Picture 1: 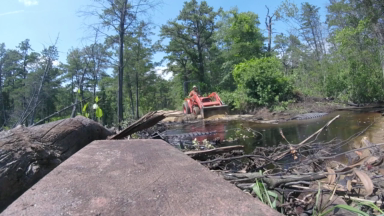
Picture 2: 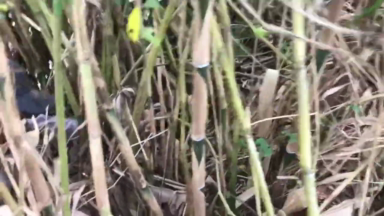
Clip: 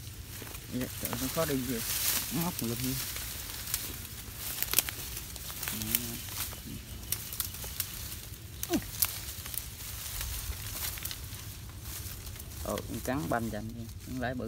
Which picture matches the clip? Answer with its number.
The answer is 2